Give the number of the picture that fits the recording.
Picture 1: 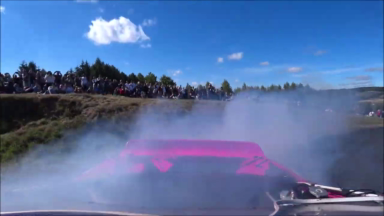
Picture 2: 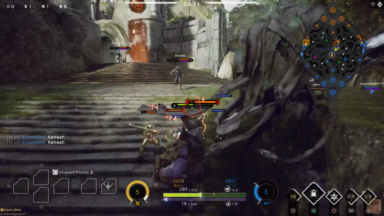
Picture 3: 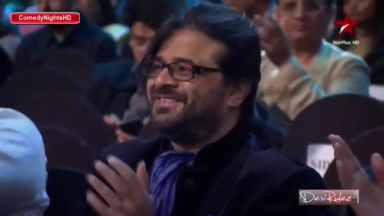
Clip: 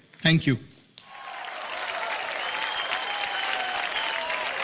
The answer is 3